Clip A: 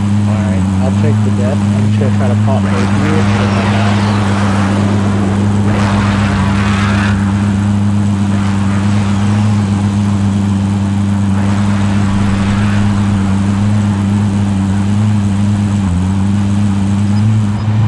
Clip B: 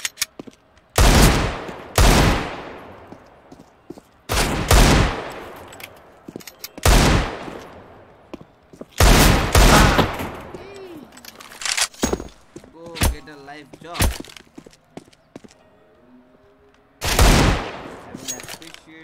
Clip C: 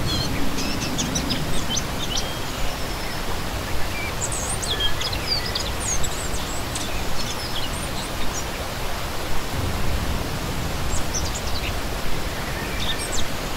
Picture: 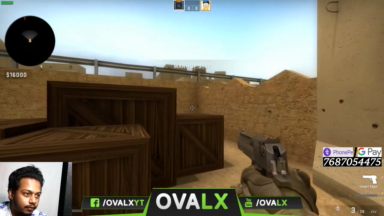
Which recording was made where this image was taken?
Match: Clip B